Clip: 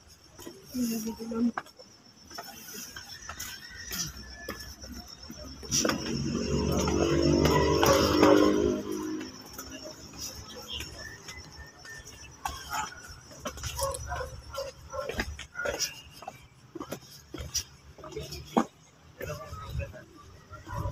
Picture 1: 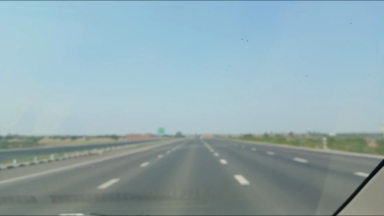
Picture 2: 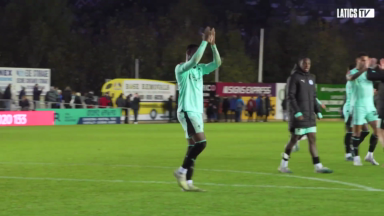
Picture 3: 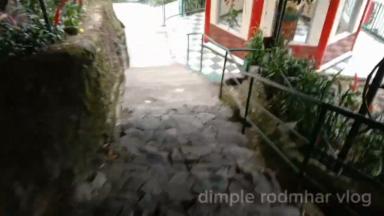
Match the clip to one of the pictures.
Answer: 3